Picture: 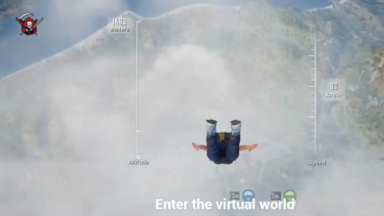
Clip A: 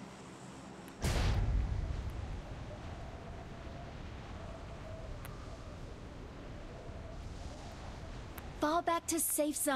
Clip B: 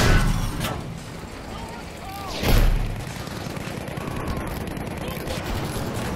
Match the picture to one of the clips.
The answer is A